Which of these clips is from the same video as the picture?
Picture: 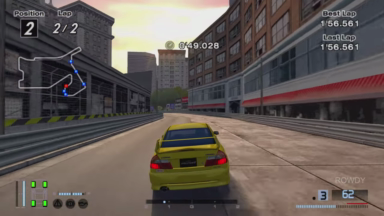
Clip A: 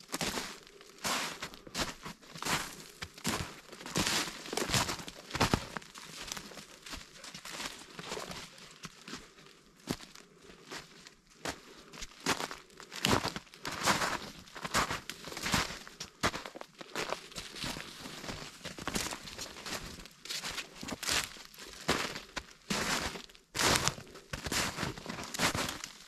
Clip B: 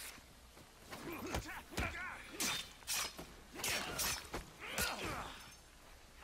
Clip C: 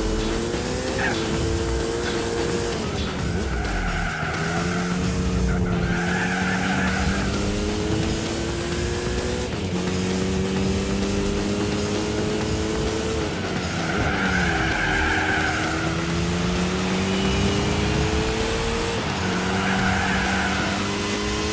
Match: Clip C